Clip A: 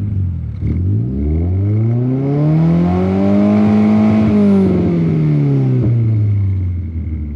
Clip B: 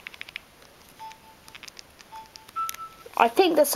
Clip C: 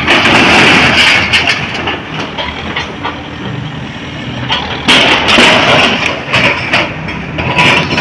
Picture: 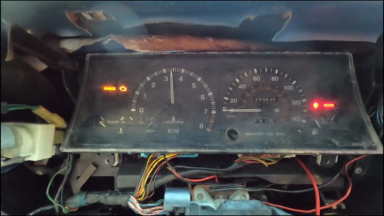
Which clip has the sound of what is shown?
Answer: A